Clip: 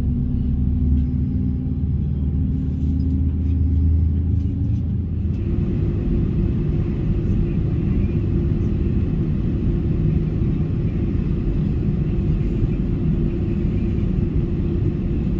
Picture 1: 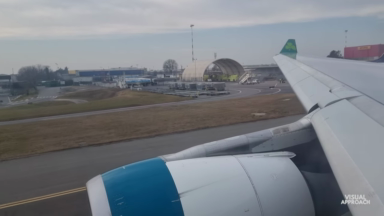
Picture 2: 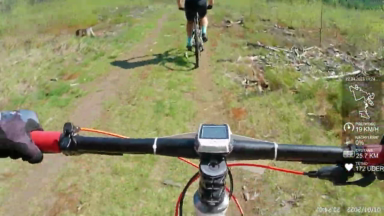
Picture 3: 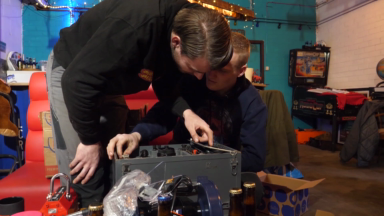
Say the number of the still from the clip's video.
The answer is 1